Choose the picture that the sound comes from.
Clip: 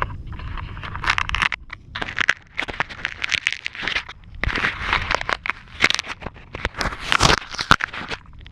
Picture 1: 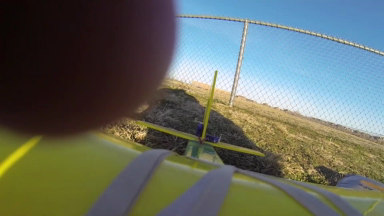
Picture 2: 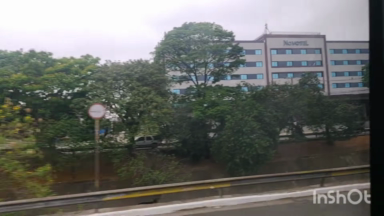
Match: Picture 1